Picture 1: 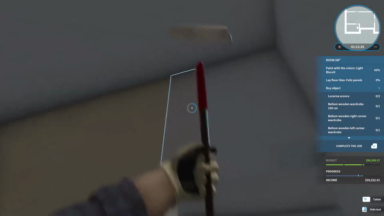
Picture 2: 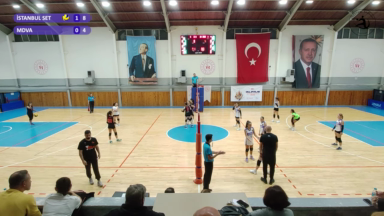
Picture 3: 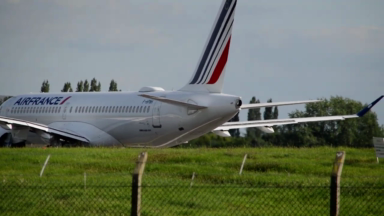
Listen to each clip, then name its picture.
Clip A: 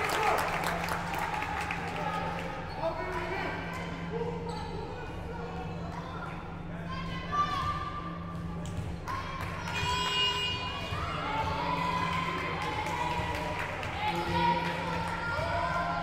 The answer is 2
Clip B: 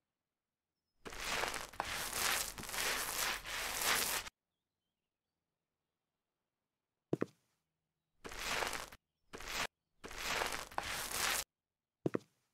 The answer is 1